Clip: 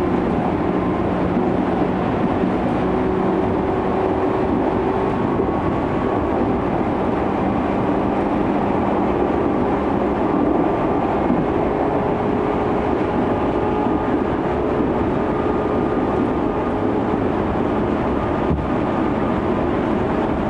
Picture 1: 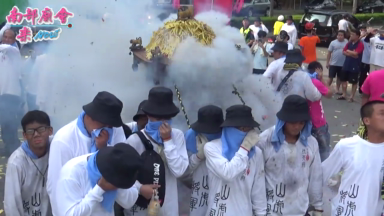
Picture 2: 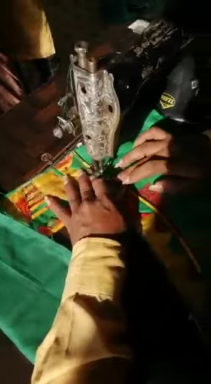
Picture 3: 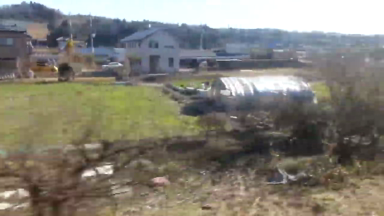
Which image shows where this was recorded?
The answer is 3